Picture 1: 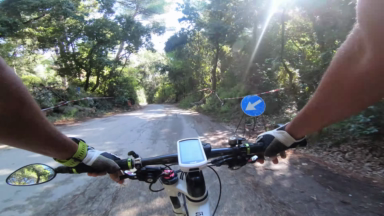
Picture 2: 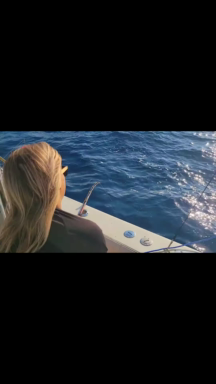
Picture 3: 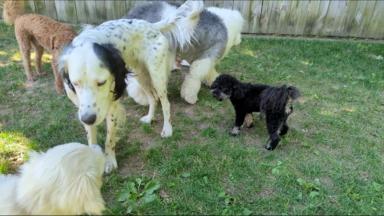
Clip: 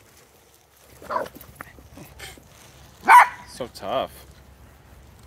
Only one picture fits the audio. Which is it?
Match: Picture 3